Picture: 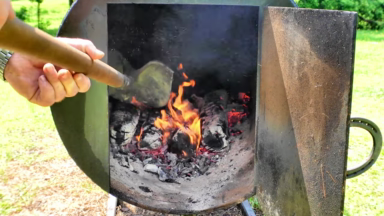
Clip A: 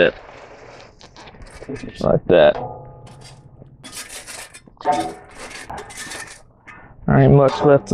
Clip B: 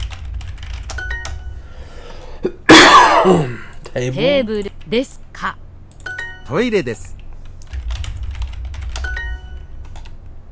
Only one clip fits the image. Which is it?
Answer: A